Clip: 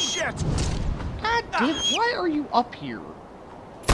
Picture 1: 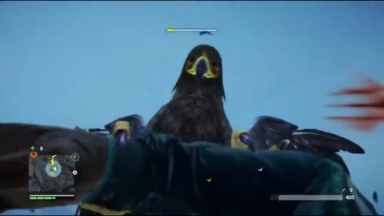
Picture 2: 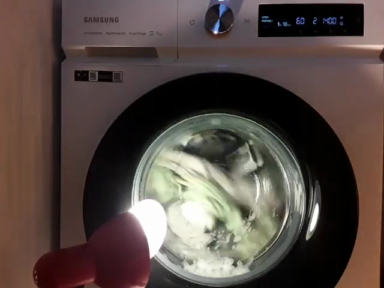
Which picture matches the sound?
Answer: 1